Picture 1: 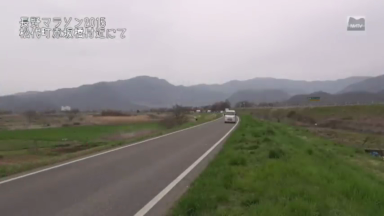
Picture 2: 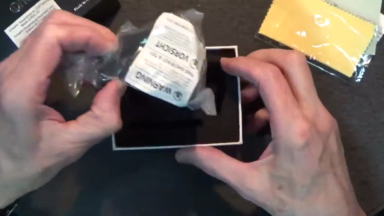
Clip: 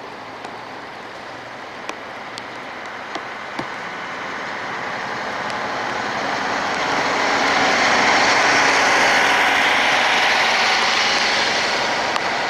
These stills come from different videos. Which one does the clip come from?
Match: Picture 1